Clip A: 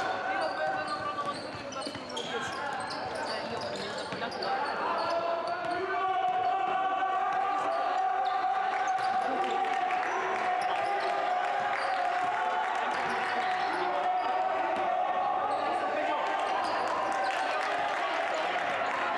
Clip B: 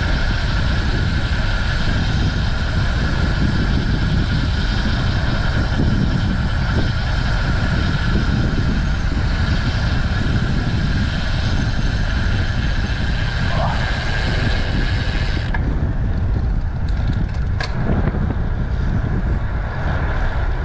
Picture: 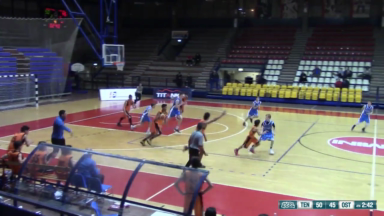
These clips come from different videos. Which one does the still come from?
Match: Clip A